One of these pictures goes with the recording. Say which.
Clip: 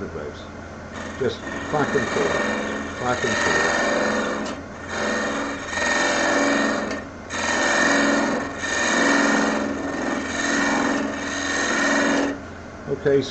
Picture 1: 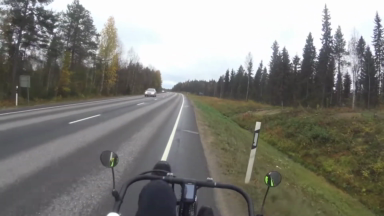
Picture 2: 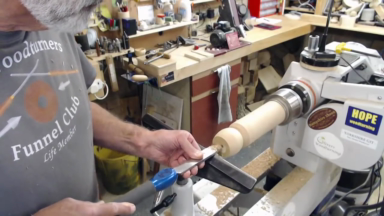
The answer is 2